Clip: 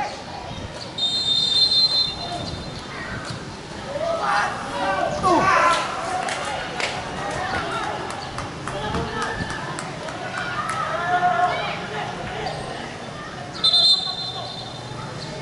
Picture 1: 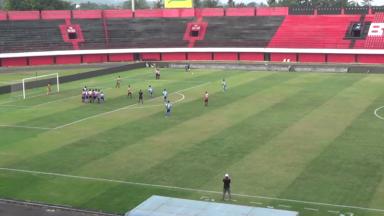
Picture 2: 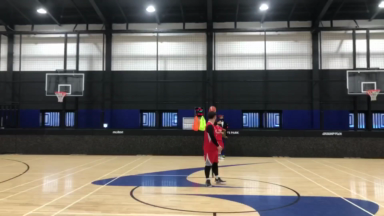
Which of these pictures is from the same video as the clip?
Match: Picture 1